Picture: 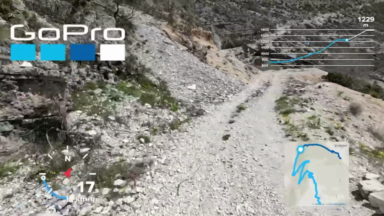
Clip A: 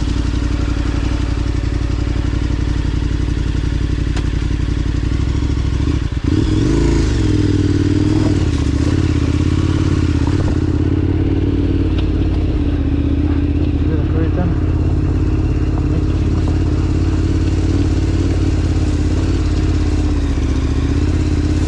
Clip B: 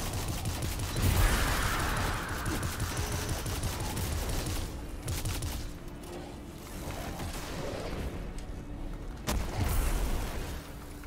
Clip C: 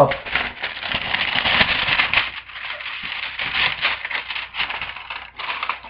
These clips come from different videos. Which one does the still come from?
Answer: A